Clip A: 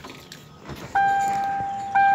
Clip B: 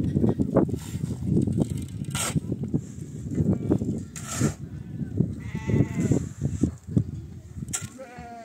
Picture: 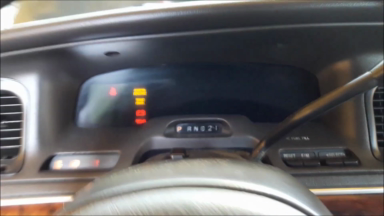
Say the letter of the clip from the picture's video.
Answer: A